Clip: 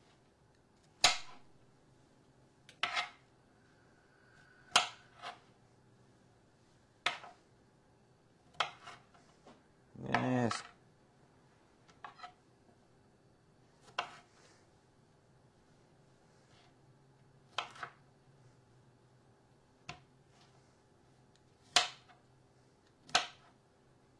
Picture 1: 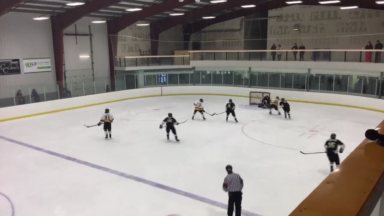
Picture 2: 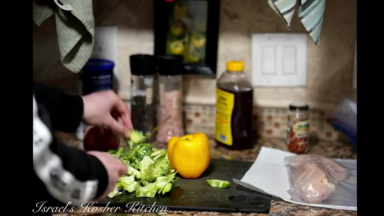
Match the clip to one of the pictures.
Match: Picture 2